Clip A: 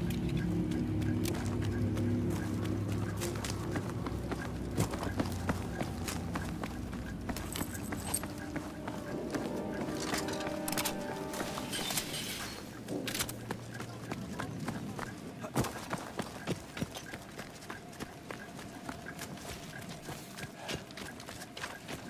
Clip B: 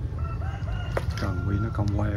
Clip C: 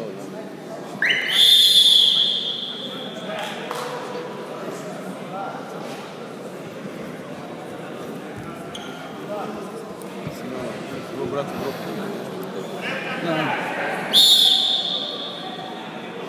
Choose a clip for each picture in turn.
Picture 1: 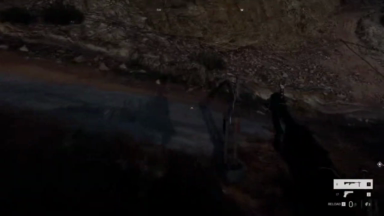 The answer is A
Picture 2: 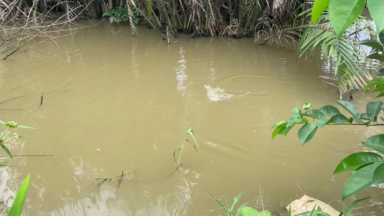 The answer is B